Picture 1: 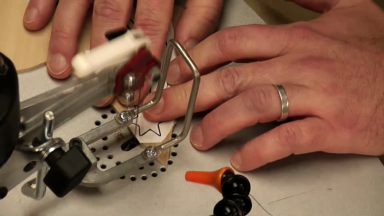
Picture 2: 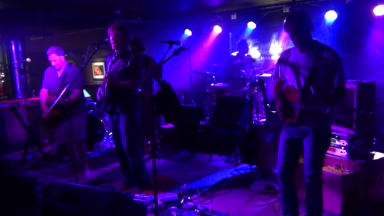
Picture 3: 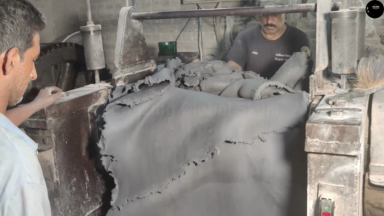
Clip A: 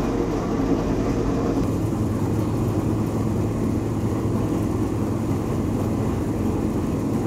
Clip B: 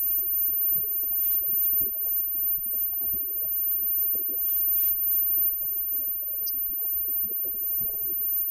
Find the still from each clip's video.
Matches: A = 3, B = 2